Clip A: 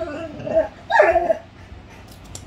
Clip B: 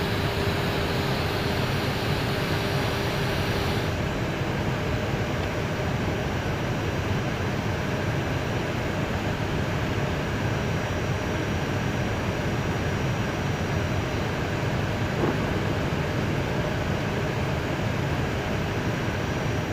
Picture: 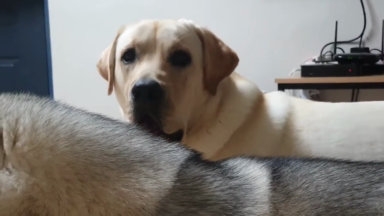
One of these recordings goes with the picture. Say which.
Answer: A